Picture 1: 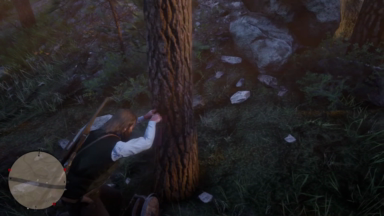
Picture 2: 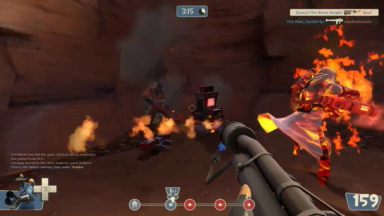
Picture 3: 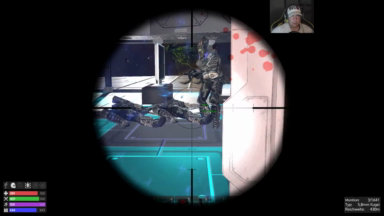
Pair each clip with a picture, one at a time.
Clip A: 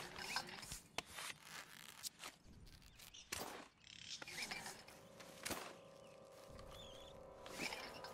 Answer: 1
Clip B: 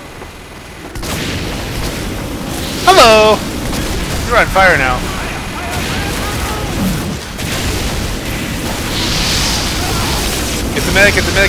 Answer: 2